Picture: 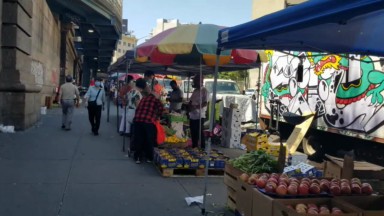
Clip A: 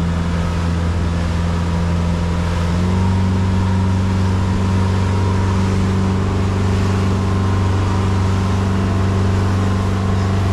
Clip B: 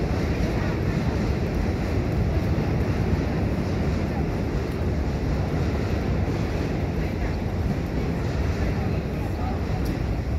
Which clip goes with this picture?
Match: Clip B